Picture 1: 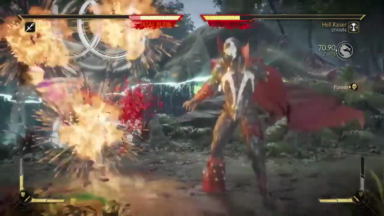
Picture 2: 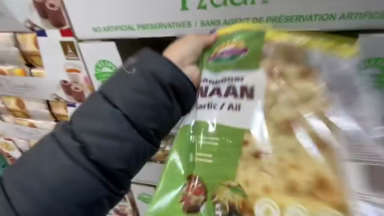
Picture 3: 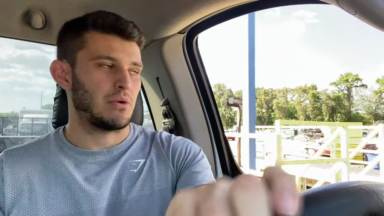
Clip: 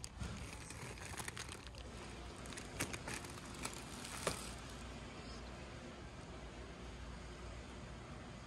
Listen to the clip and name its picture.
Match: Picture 2